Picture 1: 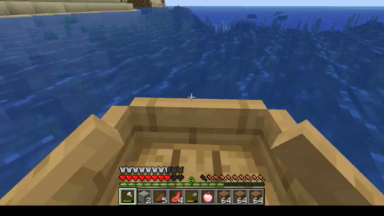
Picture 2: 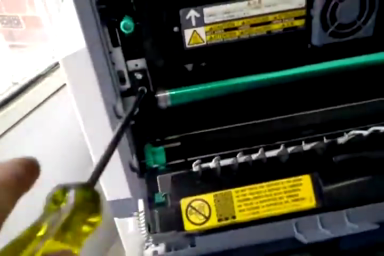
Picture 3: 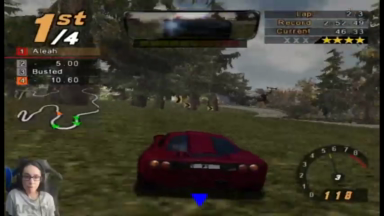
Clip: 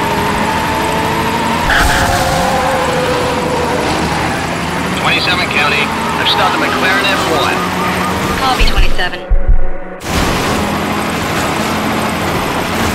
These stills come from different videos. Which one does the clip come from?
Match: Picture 3